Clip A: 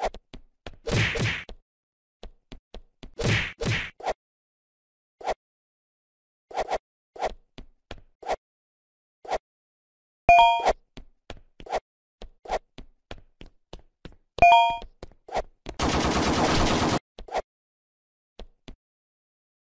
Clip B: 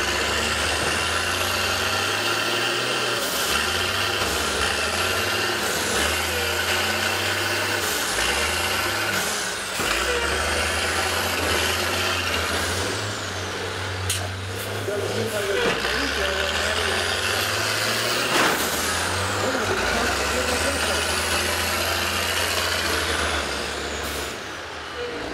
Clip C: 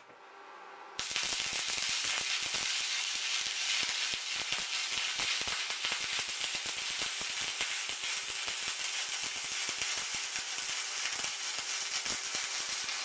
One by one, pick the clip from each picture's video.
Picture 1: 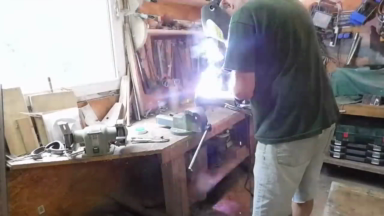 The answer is C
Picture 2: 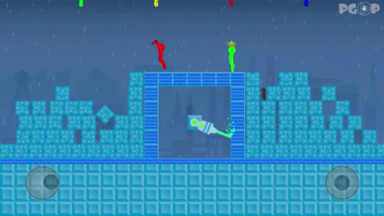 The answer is A